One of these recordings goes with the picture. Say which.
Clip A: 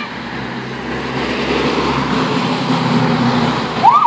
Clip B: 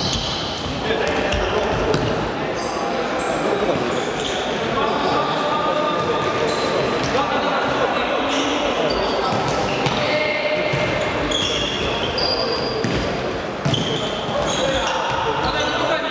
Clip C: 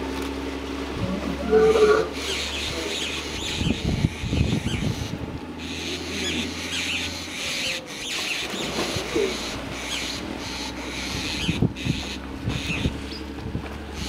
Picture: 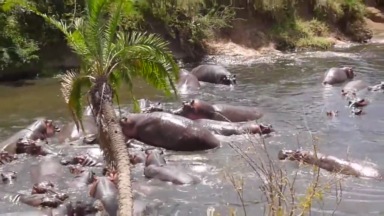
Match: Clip C